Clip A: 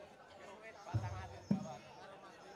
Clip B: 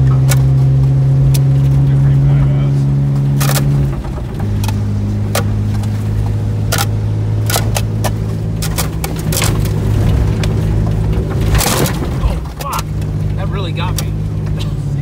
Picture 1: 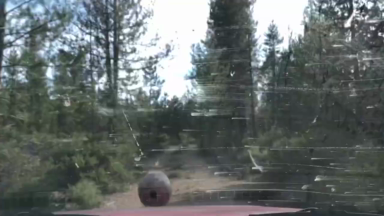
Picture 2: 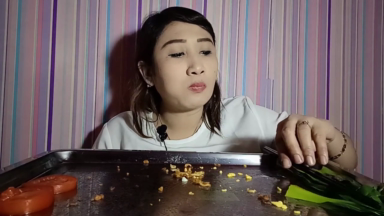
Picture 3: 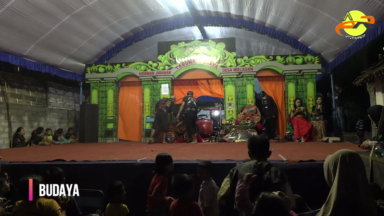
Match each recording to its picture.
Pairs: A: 3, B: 1